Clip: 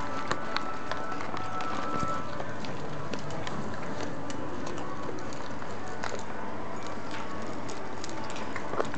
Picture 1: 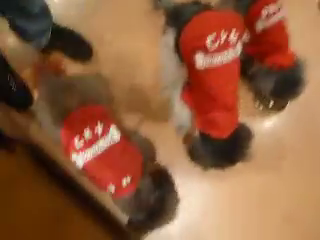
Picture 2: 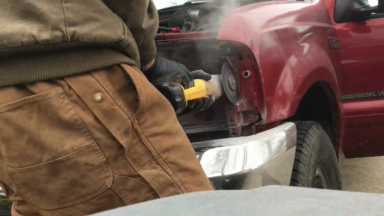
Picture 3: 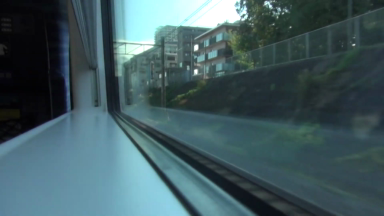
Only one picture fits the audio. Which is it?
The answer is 1